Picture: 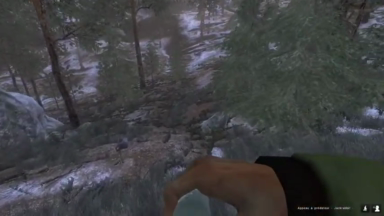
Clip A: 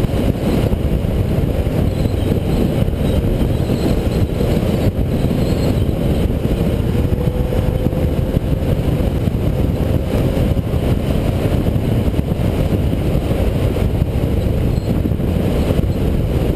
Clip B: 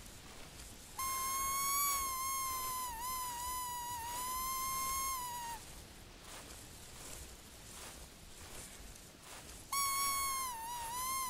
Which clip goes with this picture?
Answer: B